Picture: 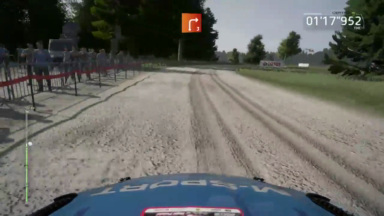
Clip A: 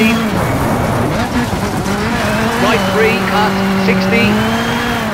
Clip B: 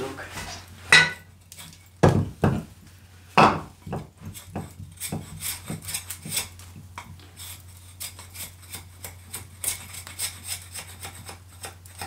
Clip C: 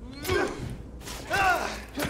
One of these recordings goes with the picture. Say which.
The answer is A